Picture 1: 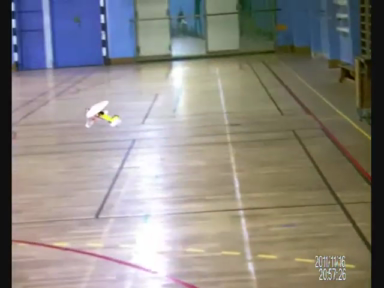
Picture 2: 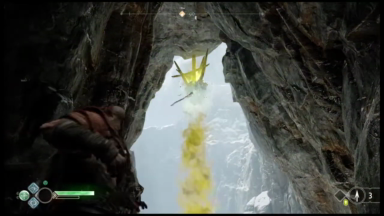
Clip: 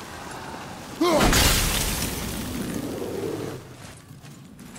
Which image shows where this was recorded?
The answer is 2